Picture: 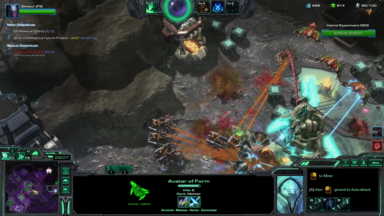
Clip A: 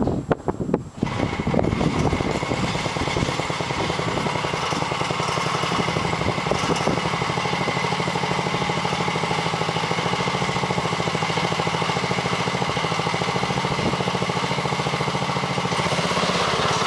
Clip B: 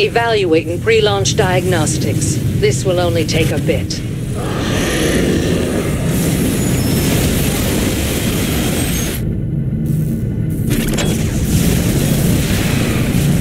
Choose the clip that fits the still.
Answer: B